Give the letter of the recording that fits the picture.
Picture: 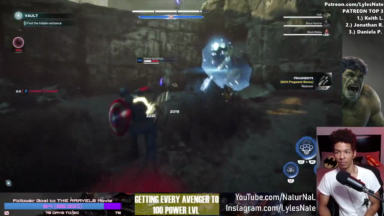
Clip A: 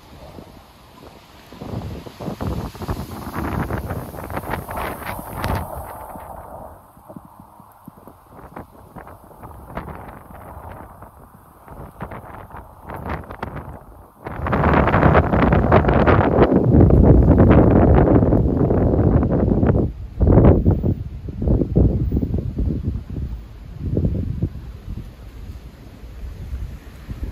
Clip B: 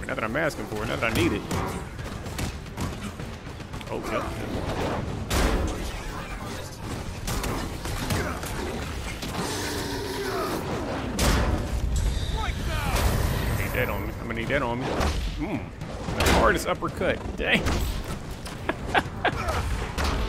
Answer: B